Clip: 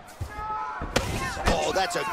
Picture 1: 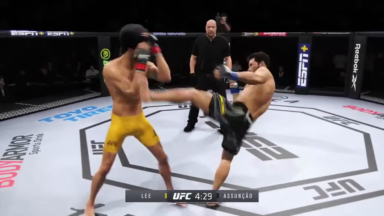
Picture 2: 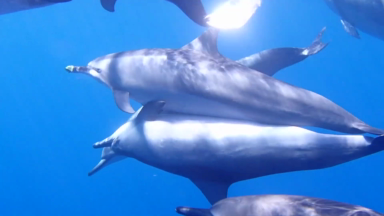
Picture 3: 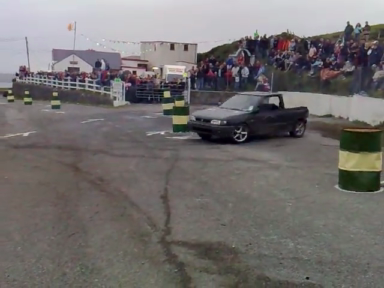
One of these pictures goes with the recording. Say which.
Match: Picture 1